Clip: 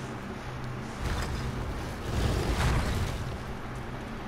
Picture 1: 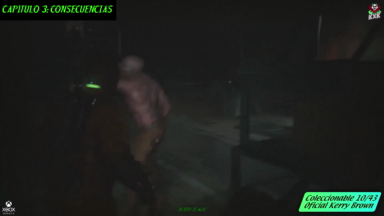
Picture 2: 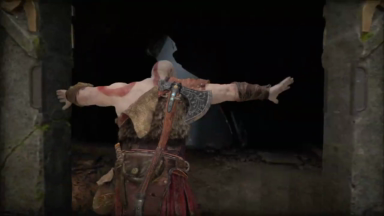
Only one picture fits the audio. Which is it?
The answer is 2